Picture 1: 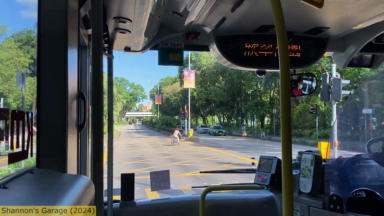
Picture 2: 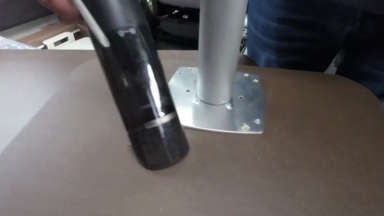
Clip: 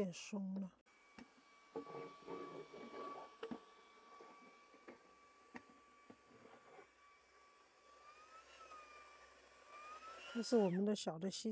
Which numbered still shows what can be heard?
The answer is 2